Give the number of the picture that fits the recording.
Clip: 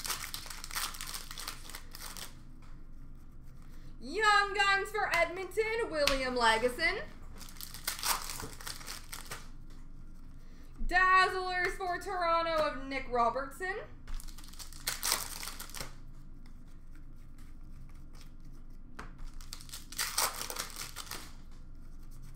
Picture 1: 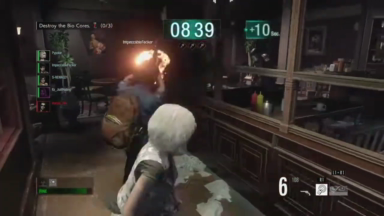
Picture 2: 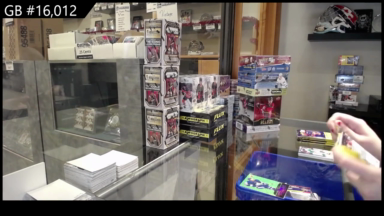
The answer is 2